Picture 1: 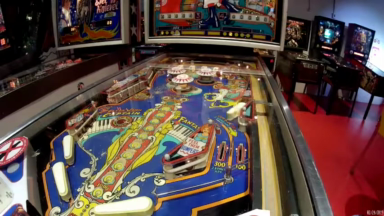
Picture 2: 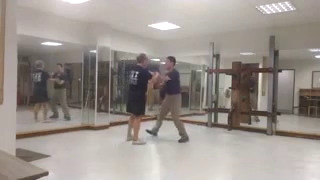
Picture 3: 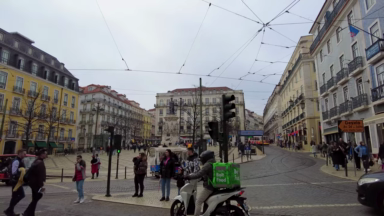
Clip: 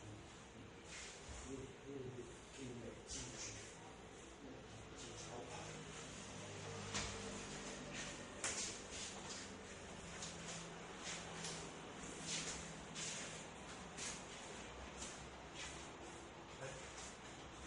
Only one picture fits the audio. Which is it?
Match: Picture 2